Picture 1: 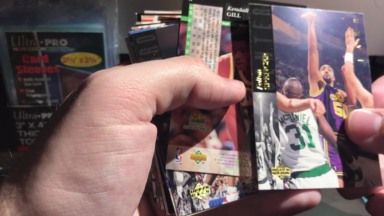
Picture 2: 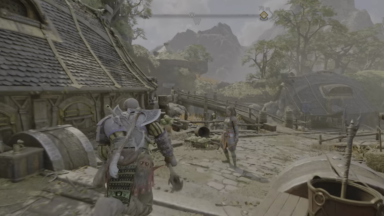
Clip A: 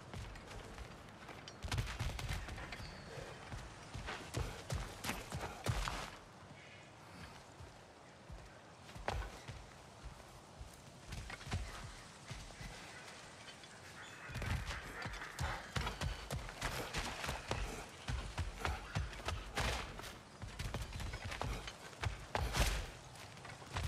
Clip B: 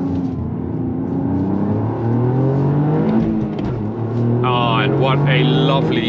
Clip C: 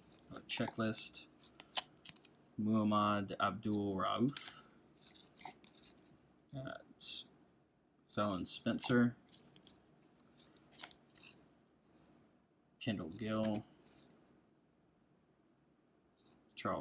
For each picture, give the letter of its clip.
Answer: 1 C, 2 A